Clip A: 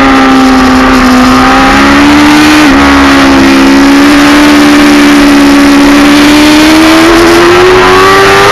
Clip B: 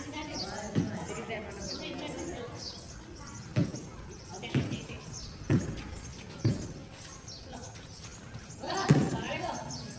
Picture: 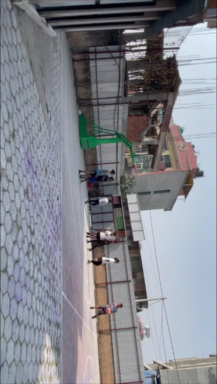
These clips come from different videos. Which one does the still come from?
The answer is B